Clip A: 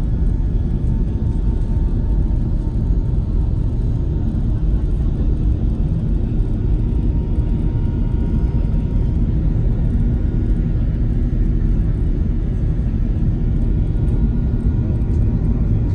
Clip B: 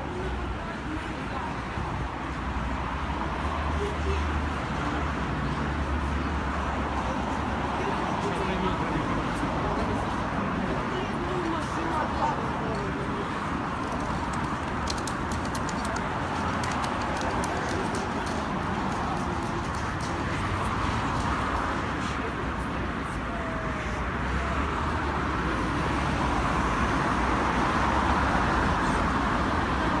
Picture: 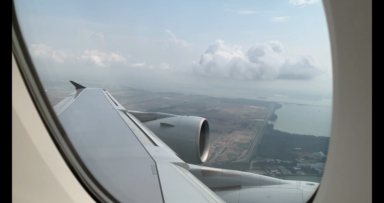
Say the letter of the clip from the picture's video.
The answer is A